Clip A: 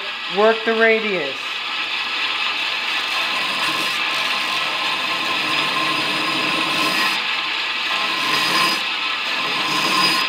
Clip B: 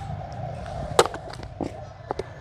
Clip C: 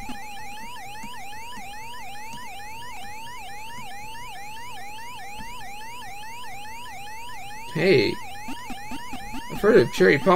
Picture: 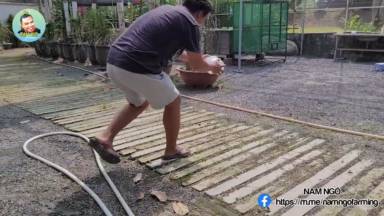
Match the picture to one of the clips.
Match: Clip B